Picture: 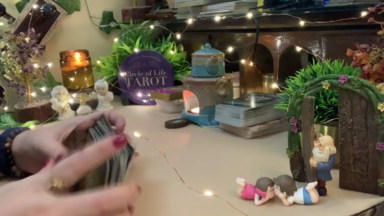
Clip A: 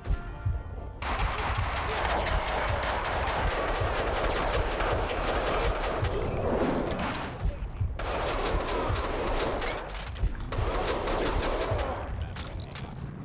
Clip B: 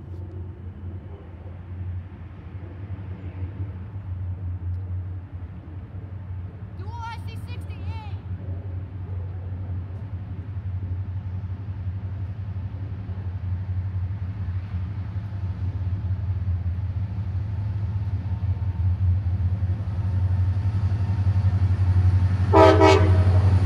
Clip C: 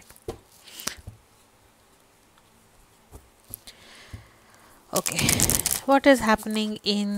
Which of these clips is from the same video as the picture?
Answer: C